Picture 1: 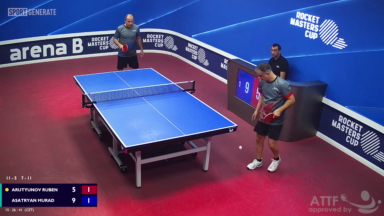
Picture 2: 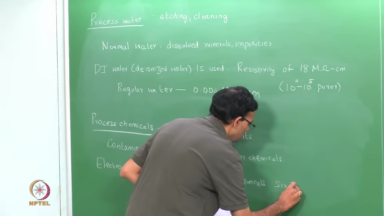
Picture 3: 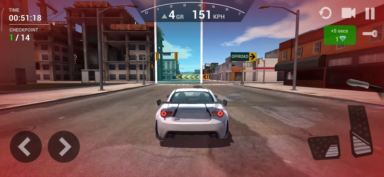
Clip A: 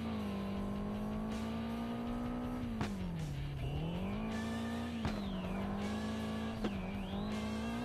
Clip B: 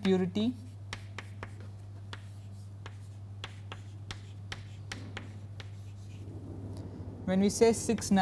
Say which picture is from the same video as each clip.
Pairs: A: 3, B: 2